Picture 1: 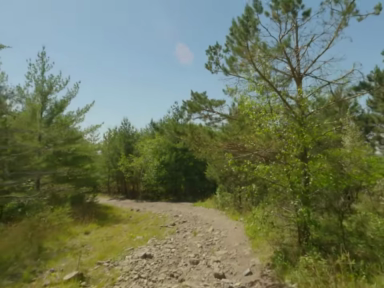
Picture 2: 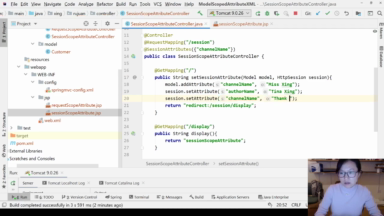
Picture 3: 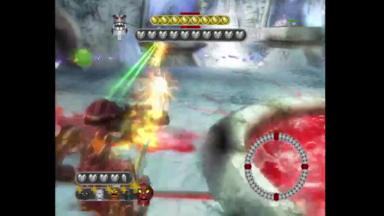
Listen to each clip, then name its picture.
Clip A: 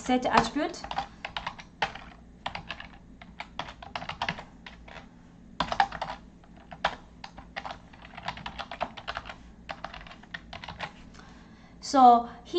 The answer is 2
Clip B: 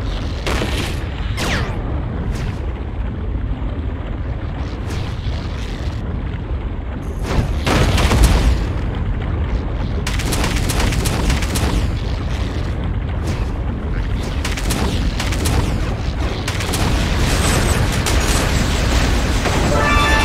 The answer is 3